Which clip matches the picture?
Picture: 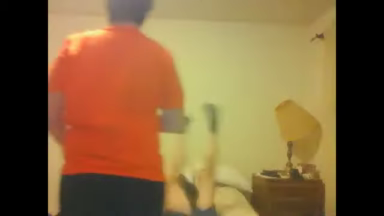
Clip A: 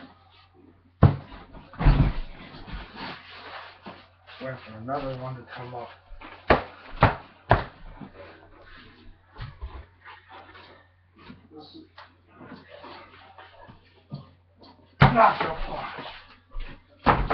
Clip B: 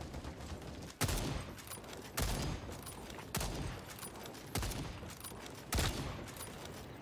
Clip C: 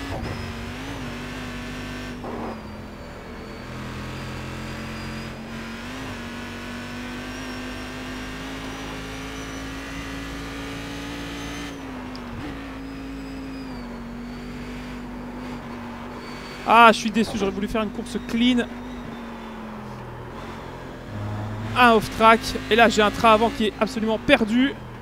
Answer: A